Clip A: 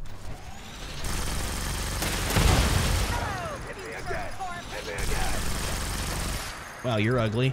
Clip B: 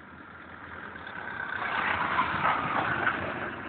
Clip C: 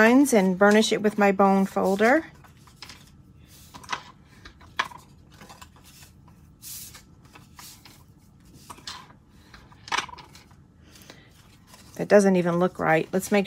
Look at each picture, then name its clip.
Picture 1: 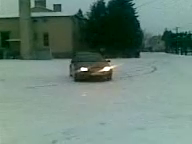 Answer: B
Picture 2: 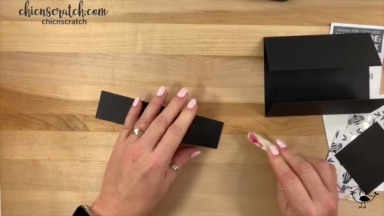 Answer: C